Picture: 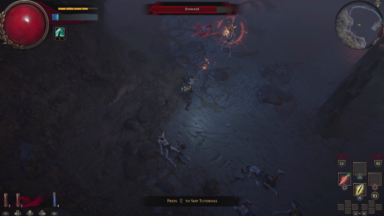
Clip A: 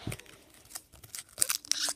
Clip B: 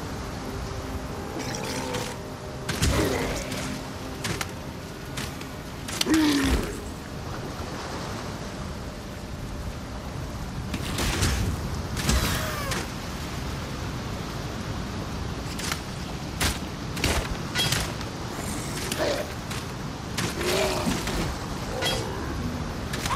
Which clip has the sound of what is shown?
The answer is B